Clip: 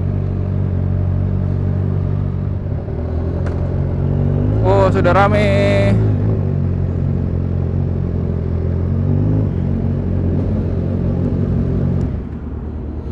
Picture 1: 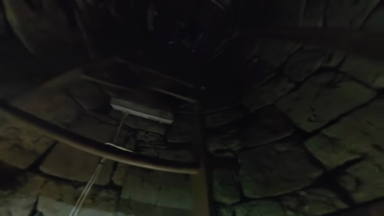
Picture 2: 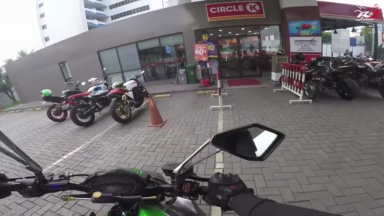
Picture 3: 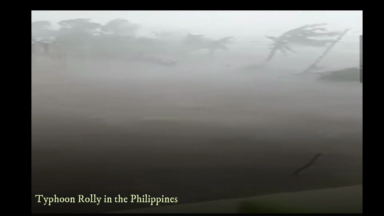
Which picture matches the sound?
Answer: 2